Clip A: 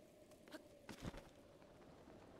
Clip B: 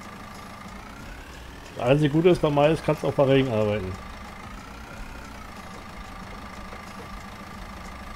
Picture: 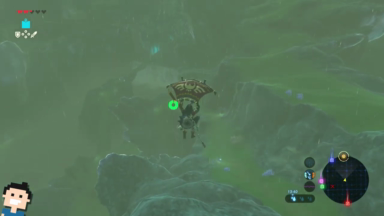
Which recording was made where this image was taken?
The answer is A